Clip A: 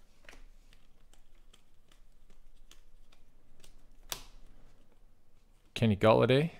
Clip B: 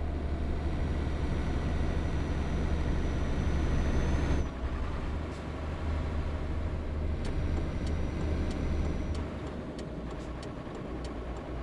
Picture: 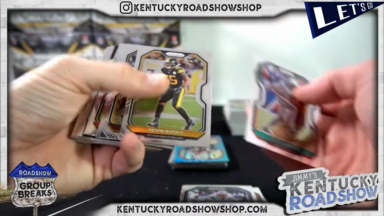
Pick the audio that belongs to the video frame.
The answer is A